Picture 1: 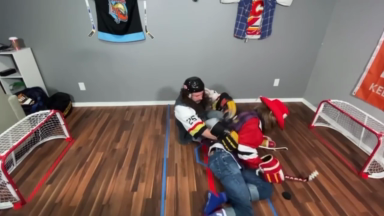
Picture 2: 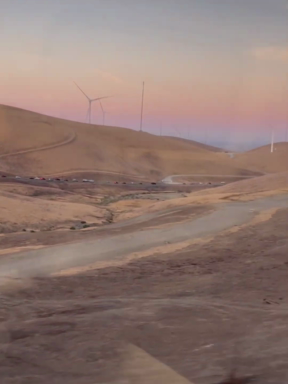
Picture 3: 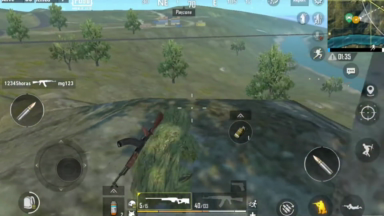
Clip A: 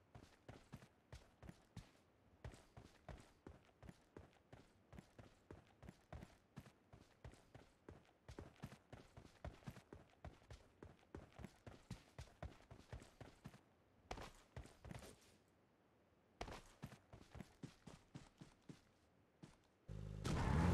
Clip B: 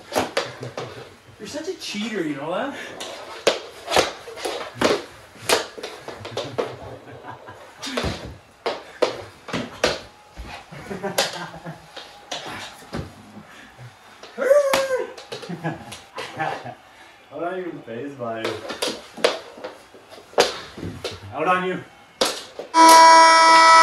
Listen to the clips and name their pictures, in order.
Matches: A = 3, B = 1